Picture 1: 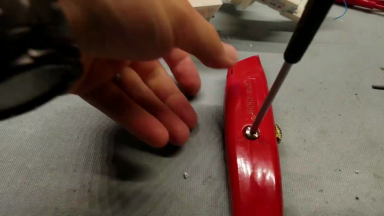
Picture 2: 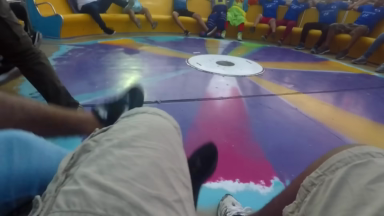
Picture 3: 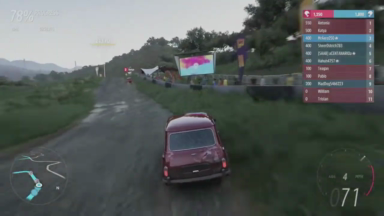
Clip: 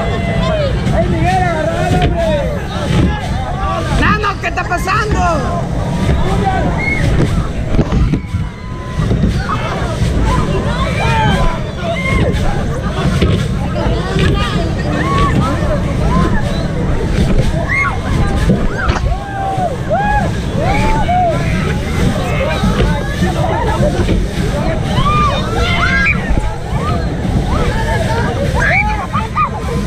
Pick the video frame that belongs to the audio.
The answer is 2